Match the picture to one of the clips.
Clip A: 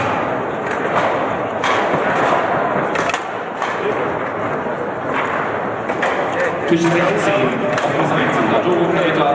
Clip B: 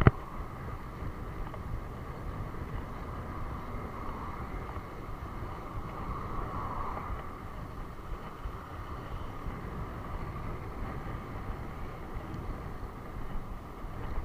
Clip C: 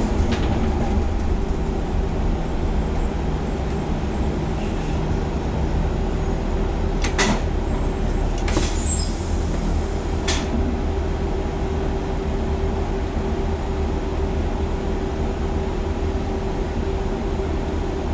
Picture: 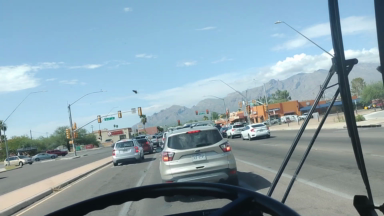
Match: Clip C